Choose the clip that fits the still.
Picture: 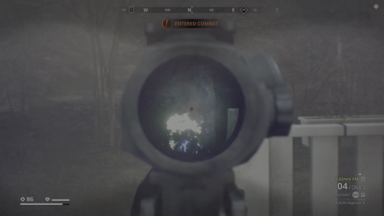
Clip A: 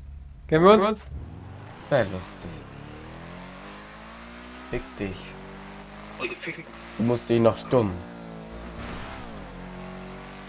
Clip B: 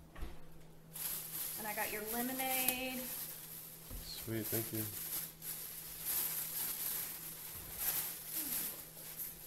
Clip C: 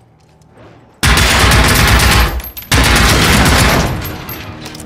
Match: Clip C